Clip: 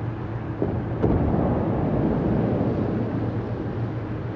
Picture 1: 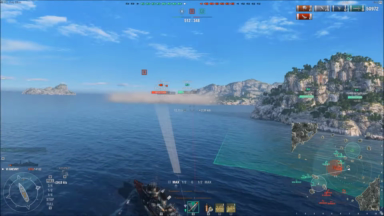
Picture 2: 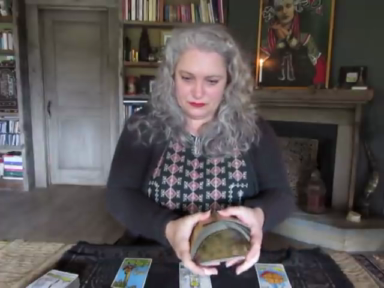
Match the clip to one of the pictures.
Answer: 1